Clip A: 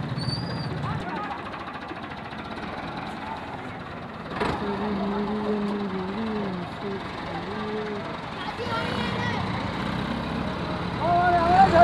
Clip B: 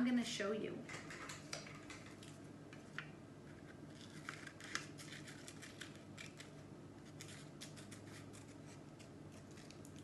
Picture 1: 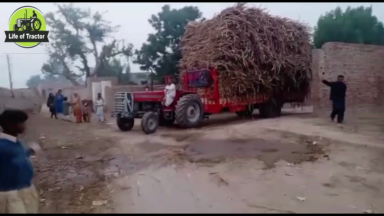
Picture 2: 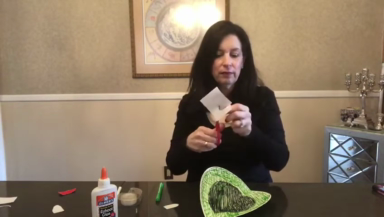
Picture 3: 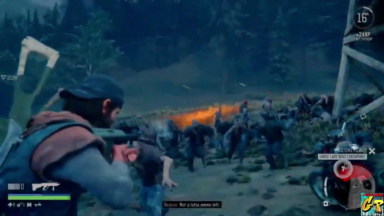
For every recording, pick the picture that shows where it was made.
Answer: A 1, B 2